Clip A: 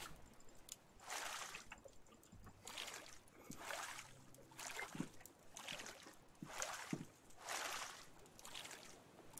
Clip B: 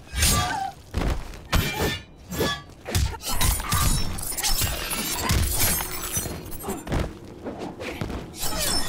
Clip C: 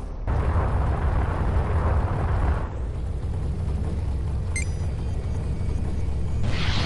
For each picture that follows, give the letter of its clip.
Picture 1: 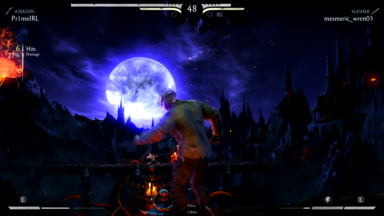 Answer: B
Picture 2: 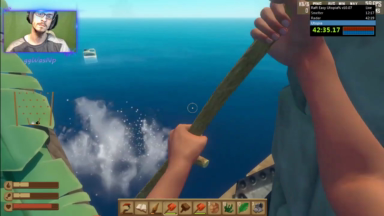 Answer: A